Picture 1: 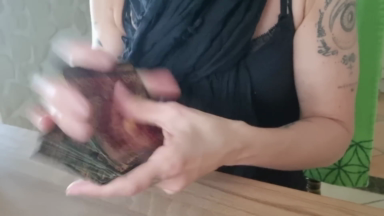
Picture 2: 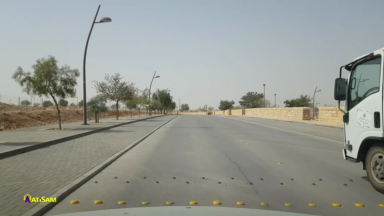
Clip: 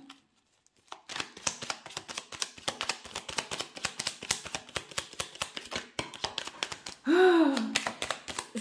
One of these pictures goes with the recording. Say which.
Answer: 1